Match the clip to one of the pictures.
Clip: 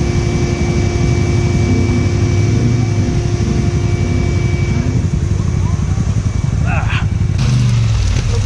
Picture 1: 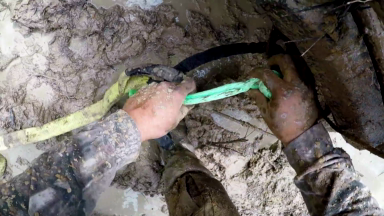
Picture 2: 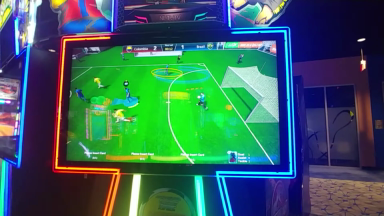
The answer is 1